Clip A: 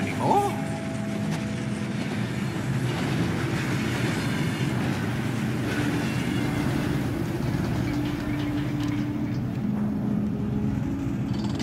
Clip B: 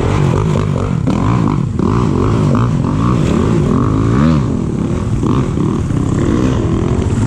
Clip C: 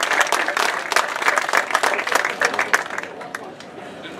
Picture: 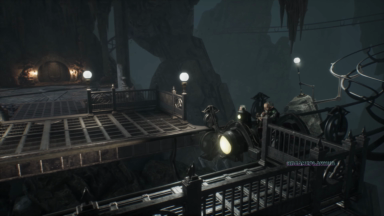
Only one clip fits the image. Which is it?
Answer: A